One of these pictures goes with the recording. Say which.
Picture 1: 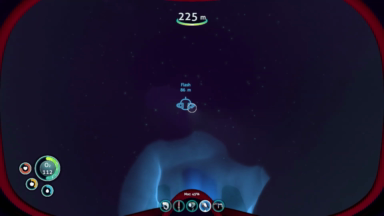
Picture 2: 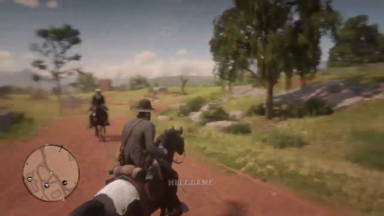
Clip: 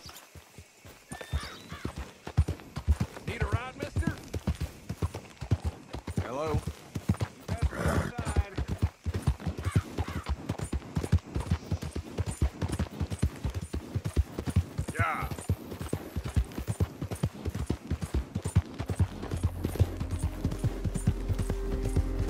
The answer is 2